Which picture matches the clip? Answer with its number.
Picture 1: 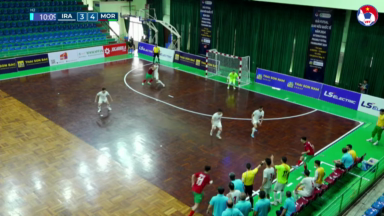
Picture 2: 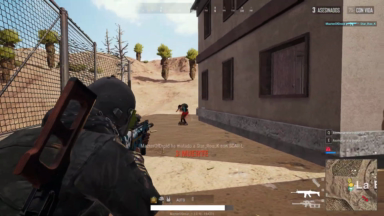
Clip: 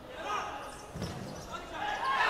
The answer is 1